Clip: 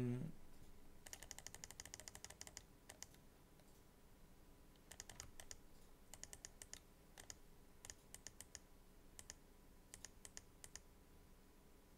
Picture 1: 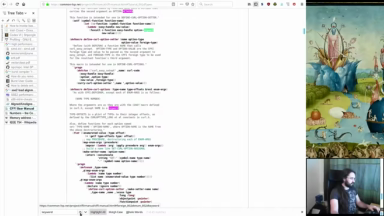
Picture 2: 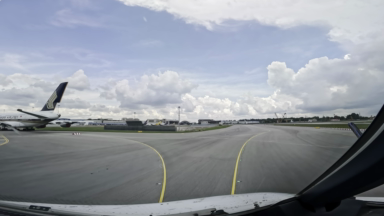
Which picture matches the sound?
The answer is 1